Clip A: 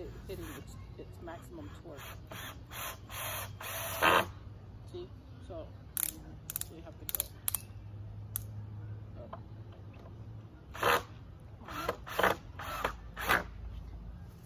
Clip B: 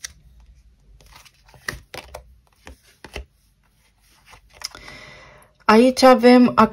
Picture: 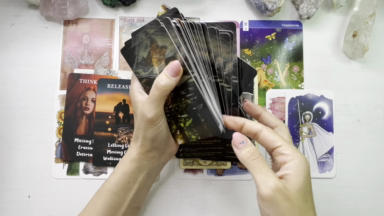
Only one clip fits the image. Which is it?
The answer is B